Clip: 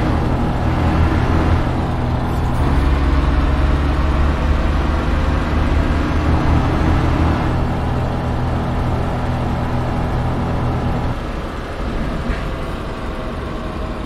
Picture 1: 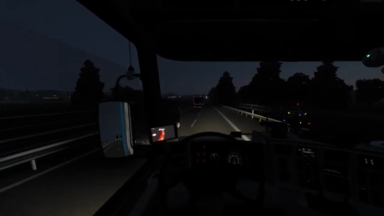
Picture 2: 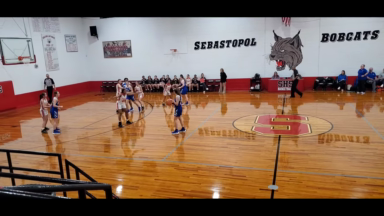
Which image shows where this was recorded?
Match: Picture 1